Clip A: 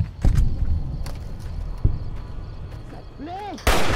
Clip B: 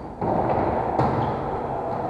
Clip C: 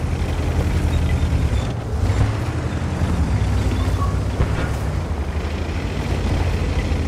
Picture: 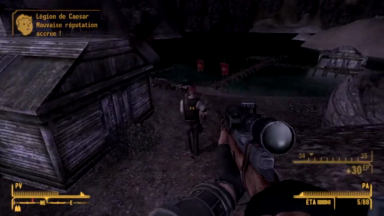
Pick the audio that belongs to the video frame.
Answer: A